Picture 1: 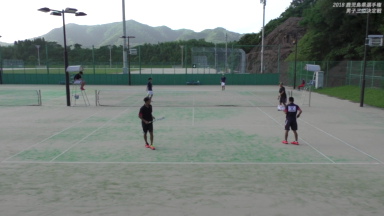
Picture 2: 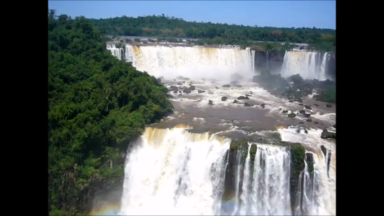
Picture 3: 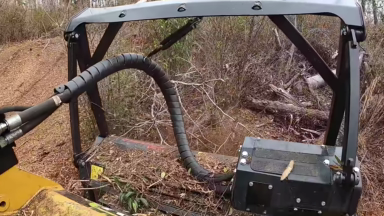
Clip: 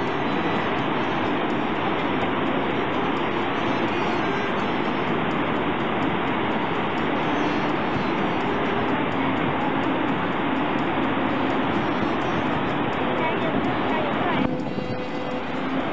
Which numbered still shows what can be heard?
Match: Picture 2